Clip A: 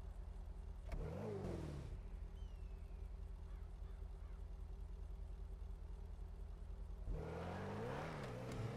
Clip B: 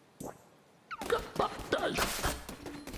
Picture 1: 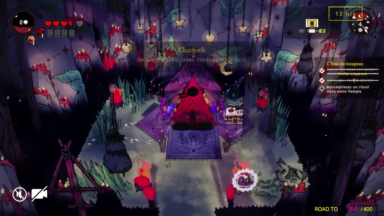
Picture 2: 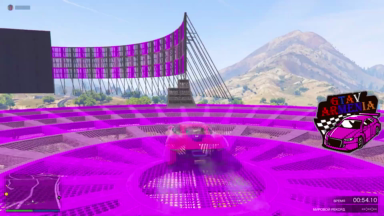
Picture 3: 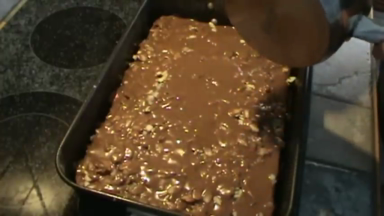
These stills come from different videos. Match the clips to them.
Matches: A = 2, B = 1